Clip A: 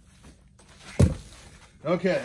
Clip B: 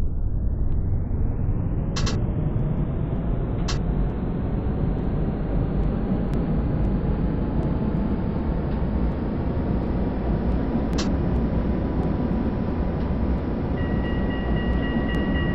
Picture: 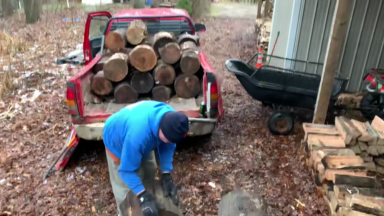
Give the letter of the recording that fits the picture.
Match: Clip A